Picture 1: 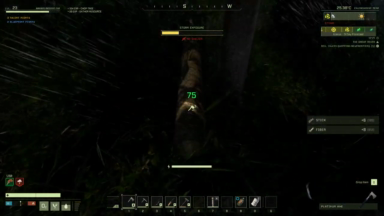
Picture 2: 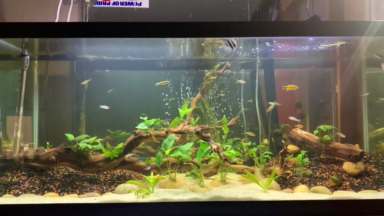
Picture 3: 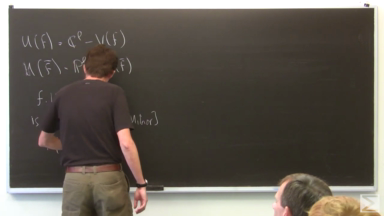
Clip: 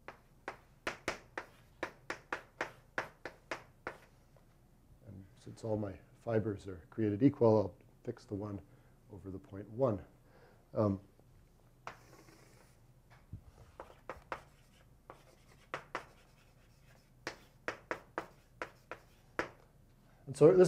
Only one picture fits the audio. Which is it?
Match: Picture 3